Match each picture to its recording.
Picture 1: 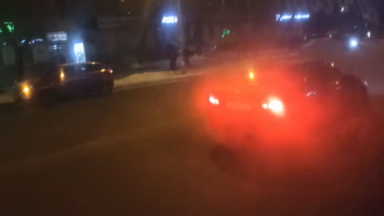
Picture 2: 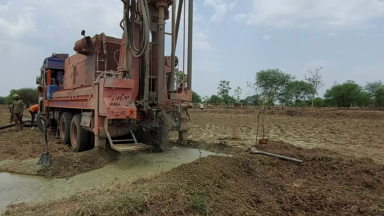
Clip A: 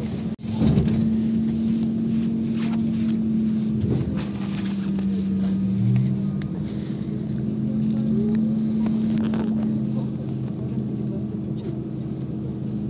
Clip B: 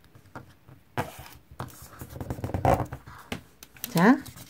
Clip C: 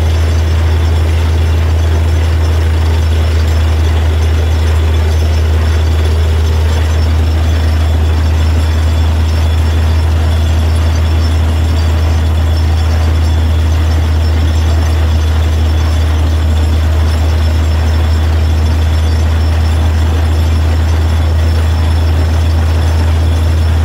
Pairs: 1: A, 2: C